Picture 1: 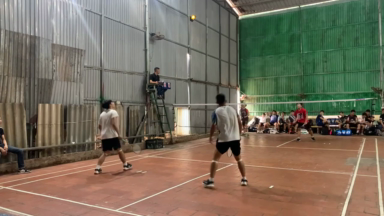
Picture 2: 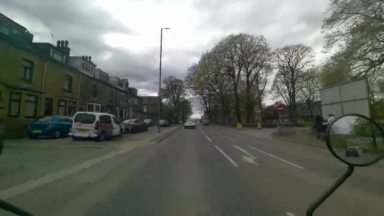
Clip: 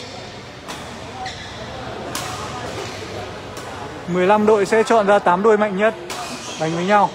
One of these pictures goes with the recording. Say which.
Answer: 1